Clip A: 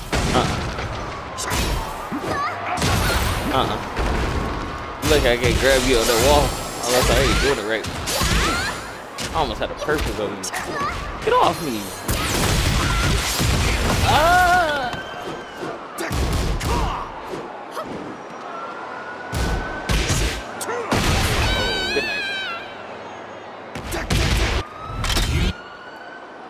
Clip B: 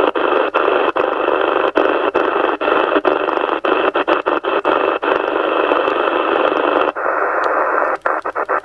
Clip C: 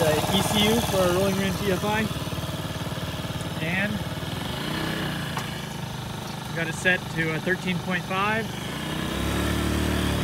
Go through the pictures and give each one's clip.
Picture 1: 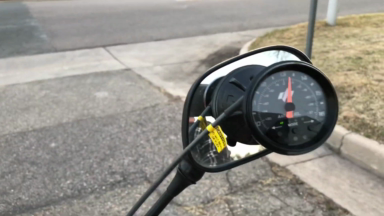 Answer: C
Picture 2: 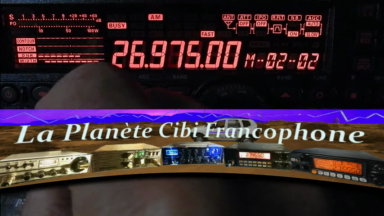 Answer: B